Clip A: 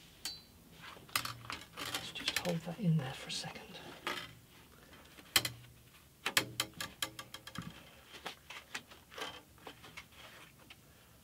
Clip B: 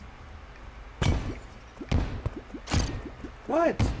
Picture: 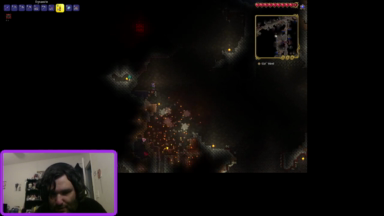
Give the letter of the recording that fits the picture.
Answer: B